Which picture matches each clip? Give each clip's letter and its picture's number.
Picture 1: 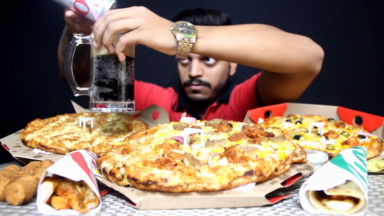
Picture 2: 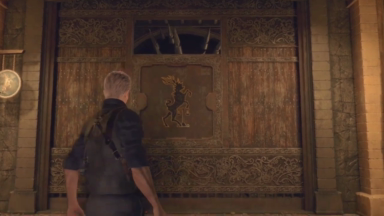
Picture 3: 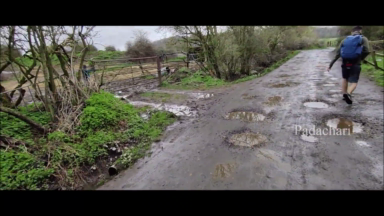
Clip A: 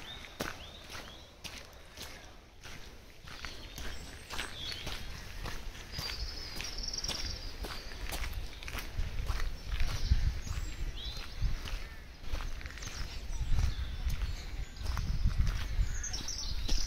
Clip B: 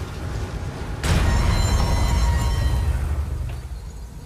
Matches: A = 3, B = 2